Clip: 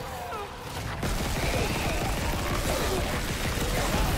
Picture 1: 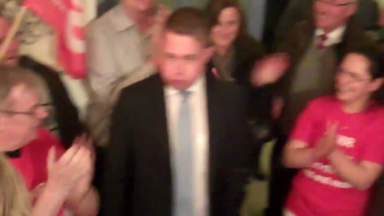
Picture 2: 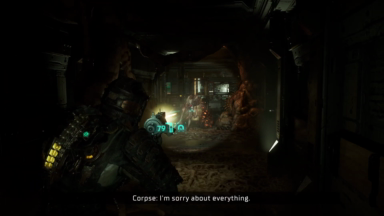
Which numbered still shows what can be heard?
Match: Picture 2